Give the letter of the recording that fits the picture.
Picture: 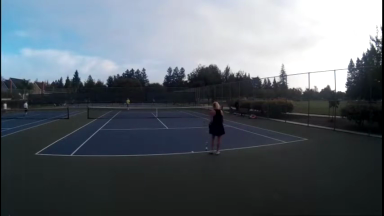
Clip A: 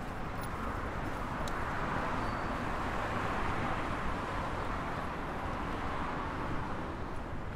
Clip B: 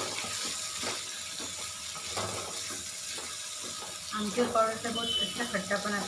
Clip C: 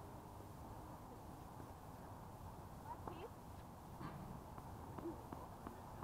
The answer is C